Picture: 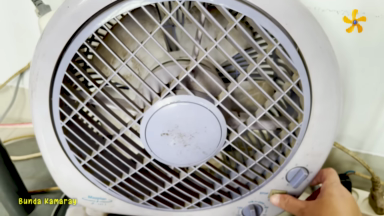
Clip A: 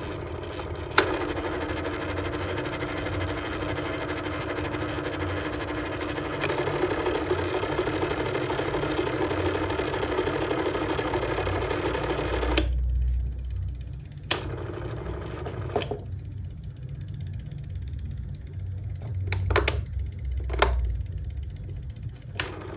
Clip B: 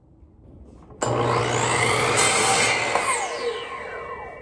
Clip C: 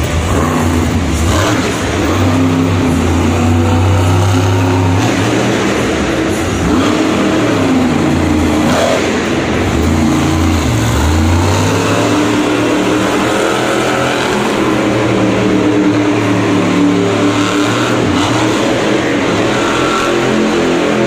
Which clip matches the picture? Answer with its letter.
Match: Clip A